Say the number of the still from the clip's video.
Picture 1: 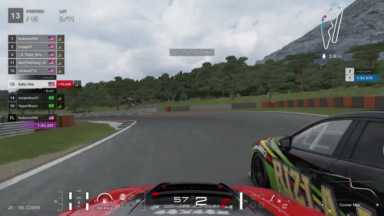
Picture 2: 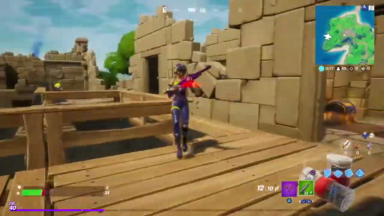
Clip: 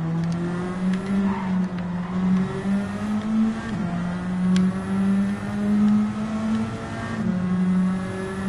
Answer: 1